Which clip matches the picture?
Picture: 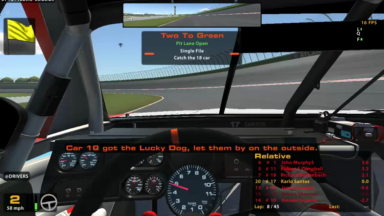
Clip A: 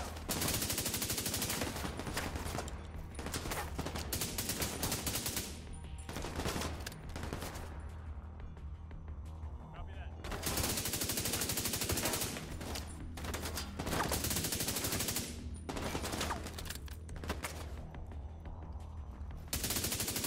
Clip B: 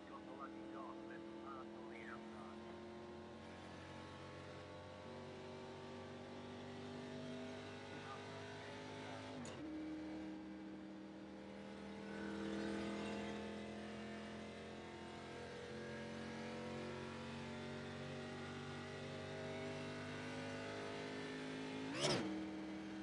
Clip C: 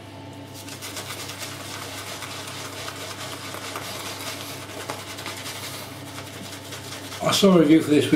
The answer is B